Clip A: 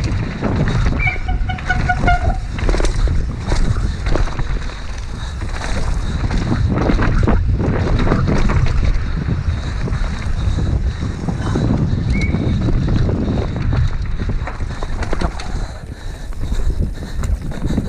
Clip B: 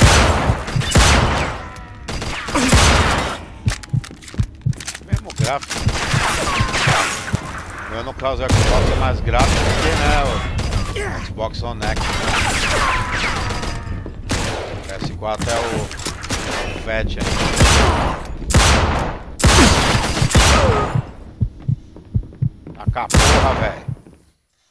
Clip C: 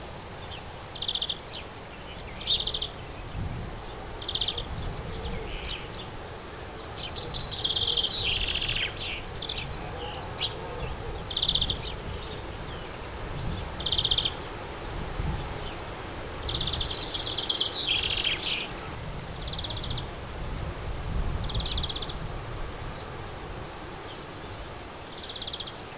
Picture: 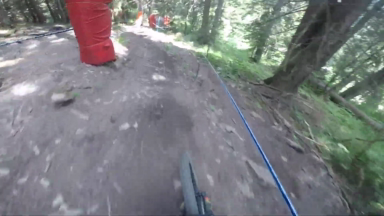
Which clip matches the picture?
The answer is A